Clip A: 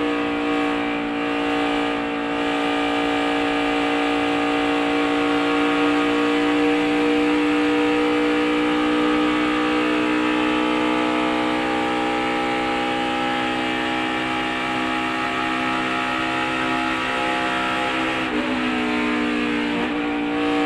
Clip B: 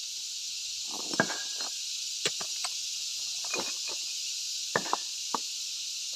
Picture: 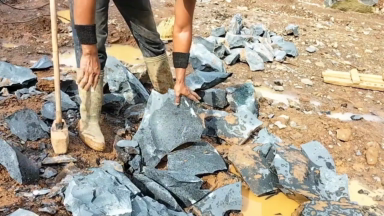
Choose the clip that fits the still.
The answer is B